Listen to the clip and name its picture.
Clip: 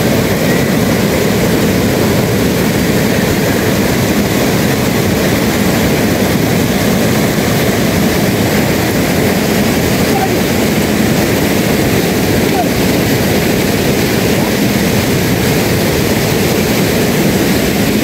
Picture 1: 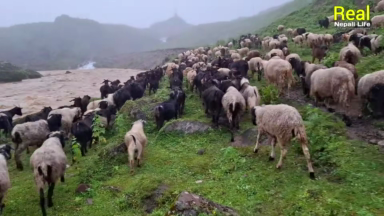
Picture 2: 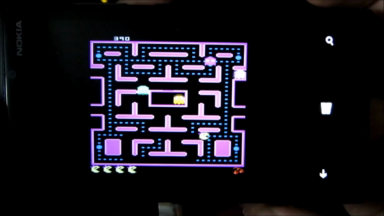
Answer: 1